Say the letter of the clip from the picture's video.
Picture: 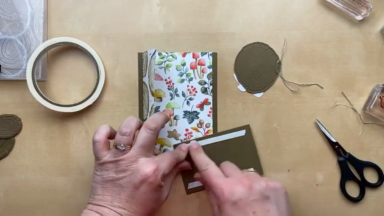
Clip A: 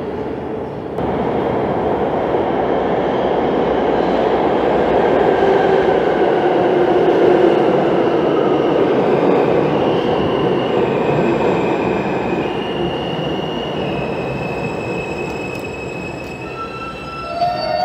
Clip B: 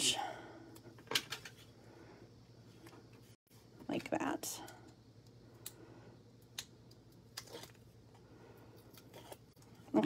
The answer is B